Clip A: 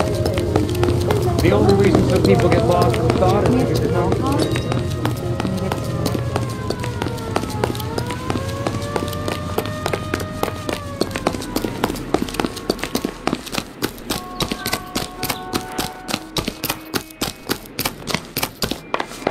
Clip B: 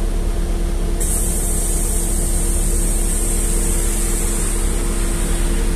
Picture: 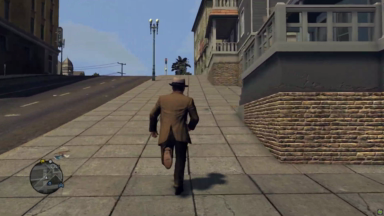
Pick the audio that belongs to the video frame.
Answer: A